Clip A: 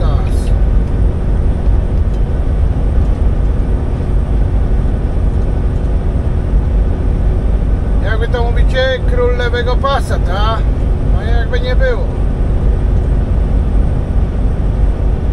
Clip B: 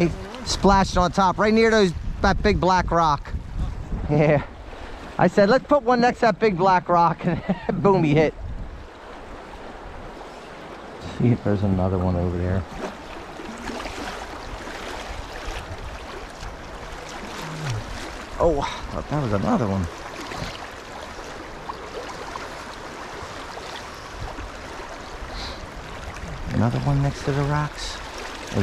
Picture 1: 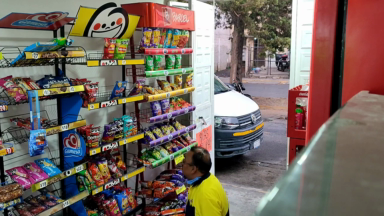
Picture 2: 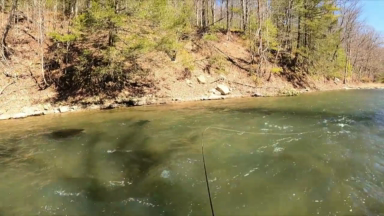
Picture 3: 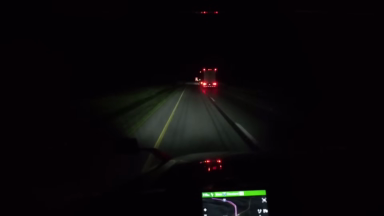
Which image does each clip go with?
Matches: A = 3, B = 2